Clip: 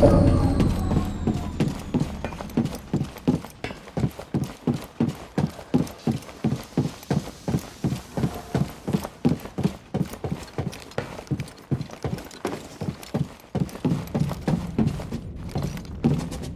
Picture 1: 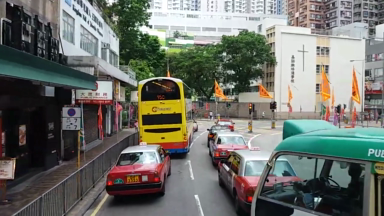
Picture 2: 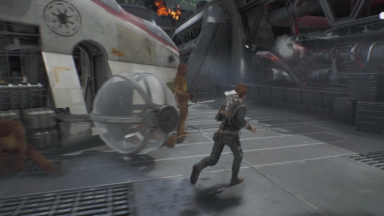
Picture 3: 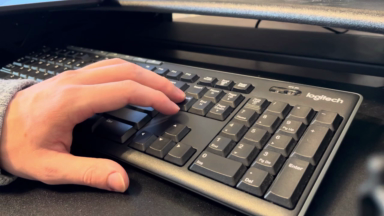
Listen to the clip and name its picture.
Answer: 2